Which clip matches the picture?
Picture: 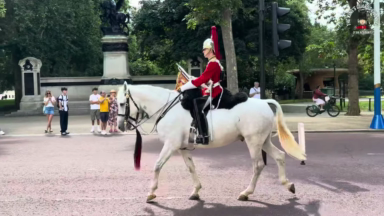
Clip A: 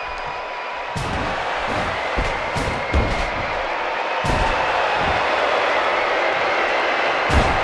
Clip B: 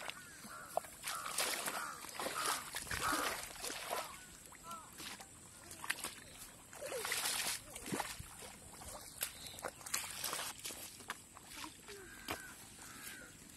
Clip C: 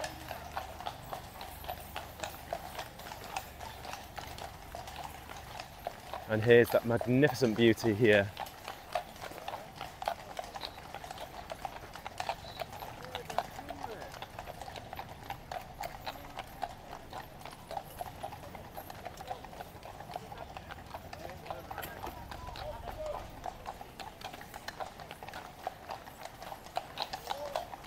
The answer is C